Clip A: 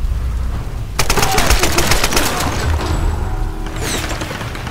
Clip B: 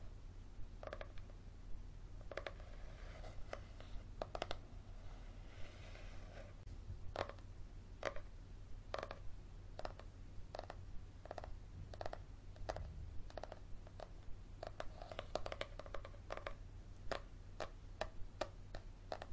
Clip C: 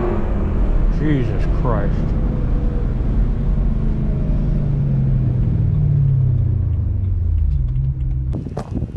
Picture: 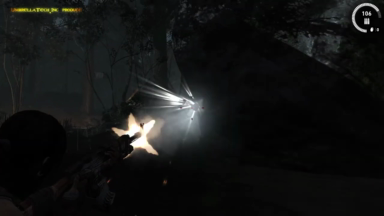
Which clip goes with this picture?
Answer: A